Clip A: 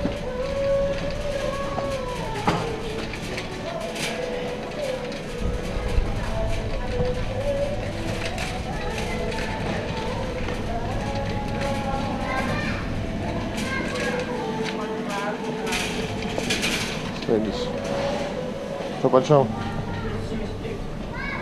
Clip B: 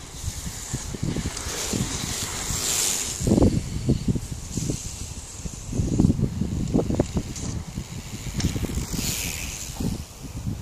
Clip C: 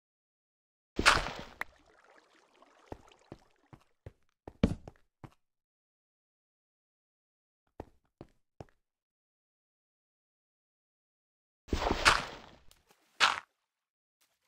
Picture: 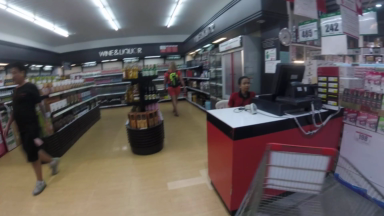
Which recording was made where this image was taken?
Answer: A